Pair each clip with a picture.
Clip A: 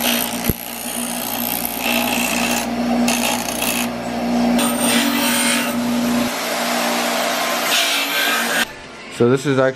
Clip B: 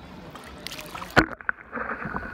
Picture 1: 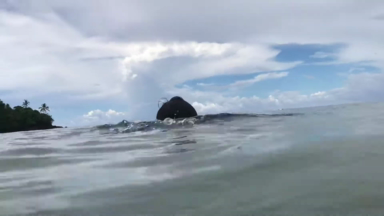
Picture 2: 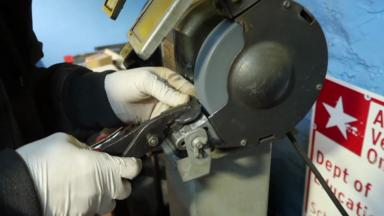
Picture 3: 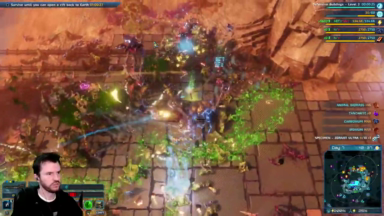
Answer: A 2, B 1